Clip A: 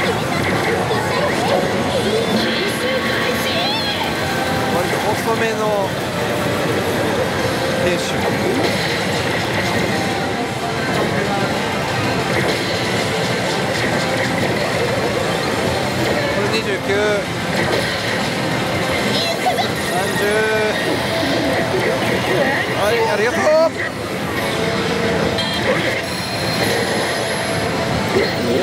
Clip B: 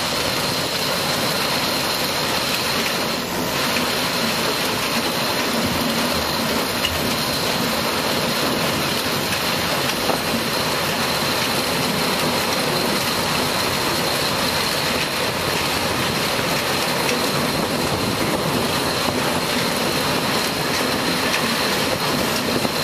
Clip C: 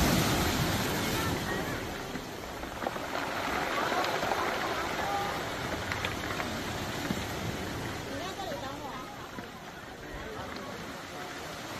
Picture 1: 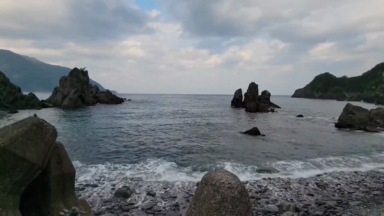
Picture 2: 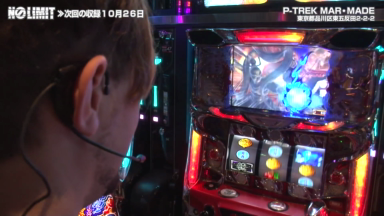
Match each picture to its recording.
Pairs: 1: C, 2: A